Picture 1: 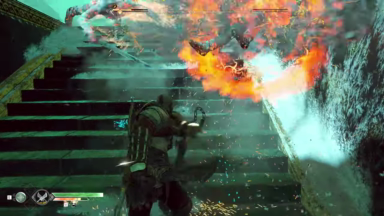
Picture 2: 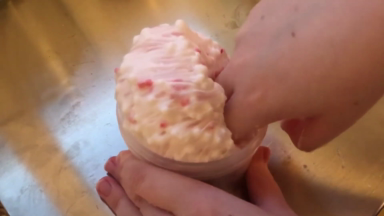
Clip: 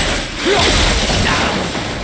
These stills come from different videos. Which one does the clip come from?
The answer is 1